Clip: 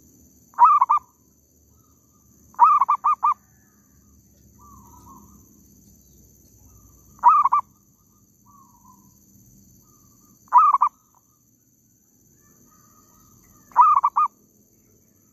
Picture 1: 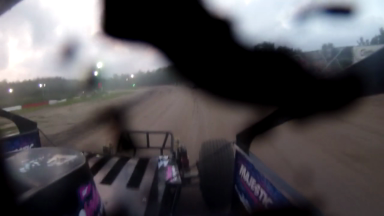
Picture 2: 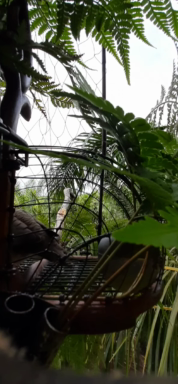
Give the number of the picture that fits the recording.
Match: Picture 2